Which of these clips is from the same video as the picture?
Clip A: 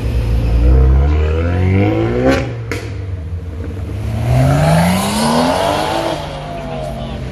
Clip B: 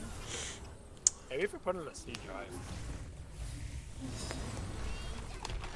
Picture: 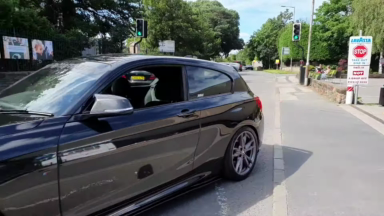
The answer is A